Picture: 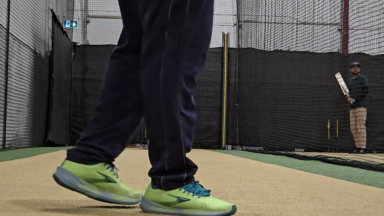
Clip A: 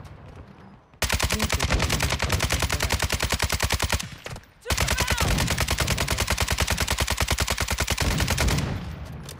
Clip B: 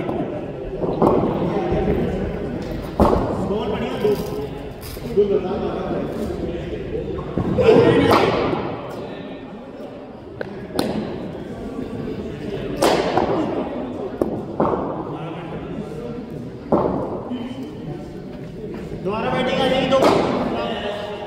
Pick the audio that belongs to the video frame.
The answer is B